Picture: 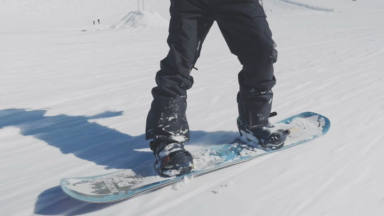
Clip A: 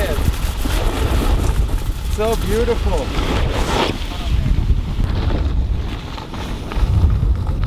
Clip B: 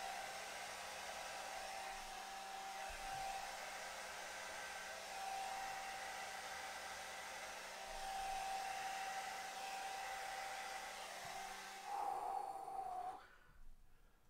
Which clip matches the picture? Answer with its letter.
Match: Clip A